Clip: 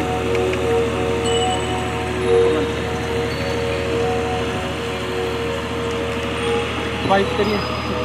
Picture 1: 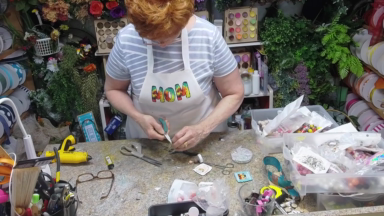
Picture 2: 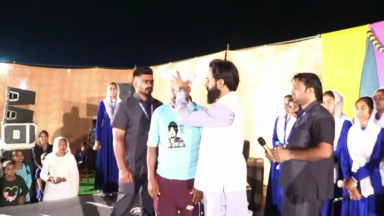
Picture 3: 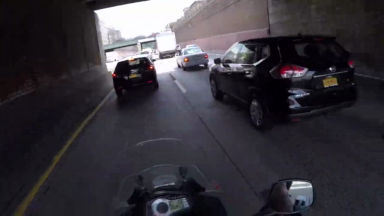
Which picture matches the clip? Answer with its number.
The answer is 2